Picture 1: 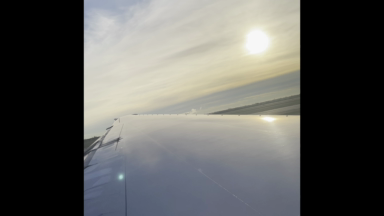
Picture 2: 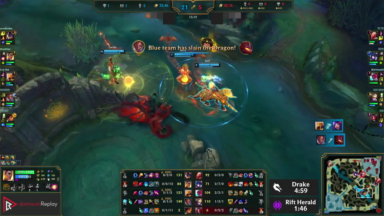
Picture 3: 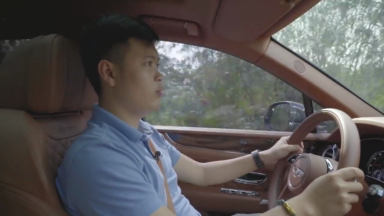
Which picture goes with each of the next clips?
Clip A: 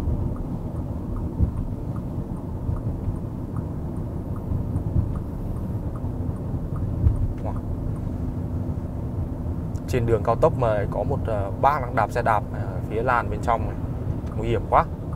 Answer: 3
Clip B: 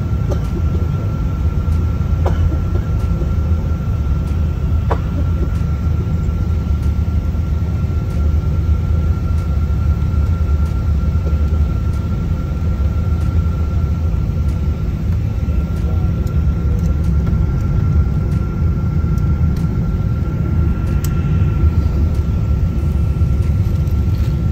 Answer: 1